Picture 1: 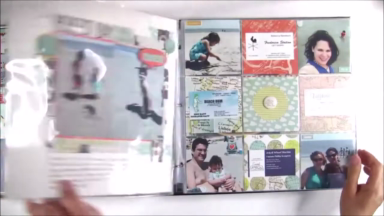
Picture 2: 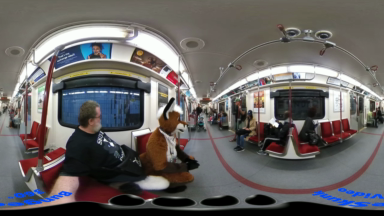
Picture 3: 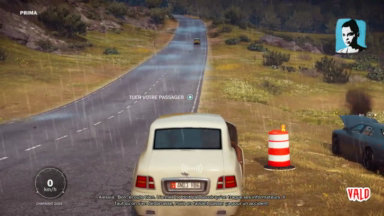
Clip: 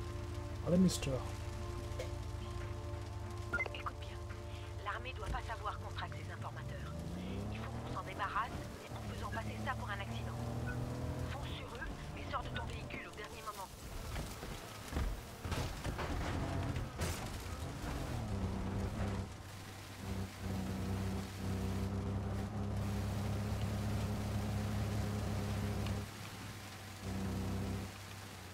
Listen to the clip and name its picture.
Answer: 3